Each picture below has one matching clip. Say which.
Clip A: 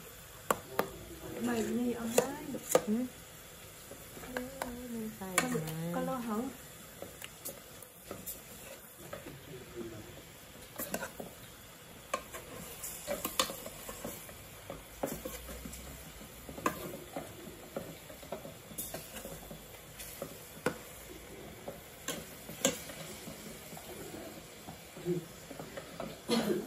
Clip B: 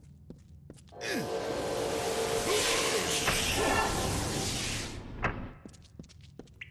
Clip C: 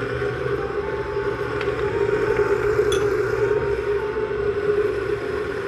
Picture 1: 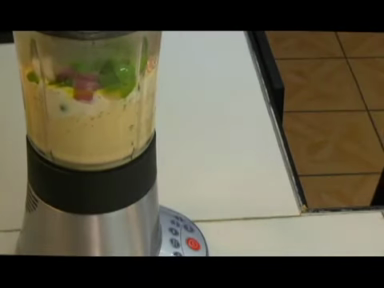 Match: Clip C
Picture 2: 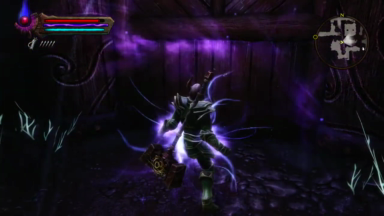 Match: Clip B